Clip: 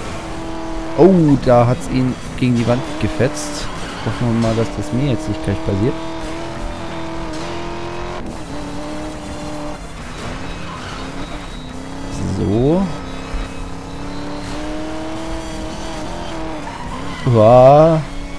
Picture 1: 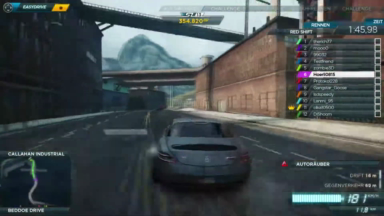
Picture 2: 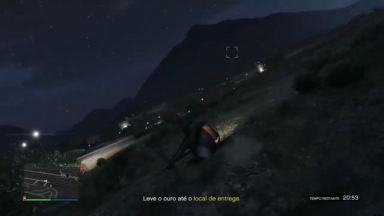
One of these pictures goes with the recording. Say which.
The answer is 1